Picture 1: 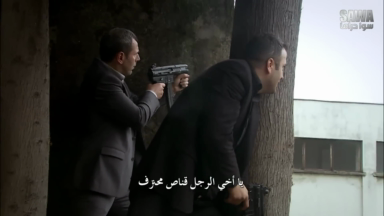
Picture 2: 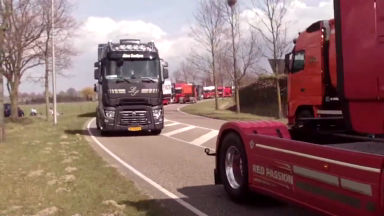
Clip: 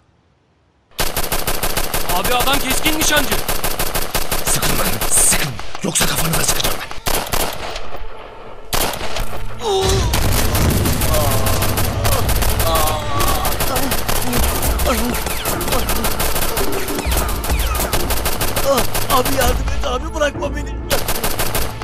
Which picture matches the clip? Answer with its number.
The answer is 1